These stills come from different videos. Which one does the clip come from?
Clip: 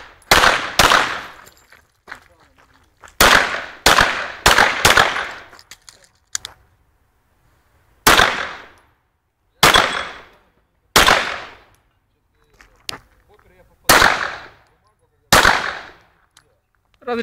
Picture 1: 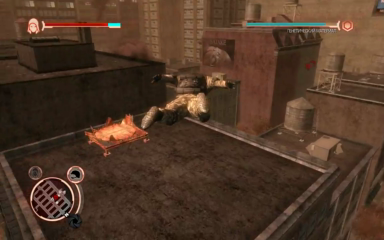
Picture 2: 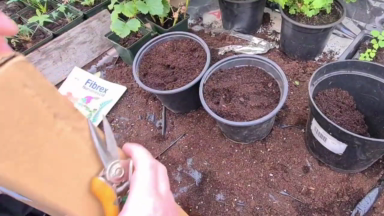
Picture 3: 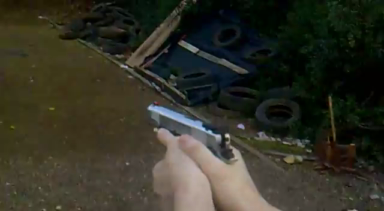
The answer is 3